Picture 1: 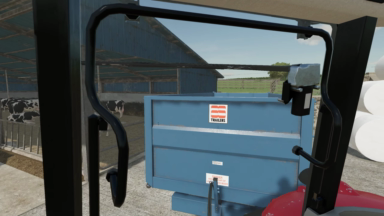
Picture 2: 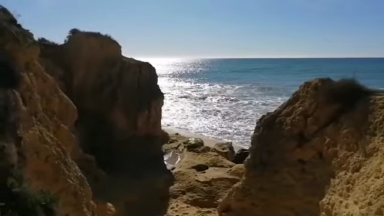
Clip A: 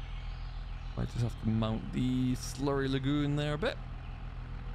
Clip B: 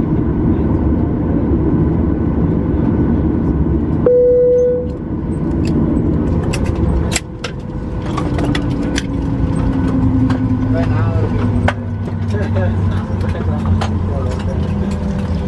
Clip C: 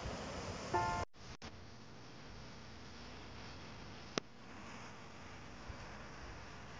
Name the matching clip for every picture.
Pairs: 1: A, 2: C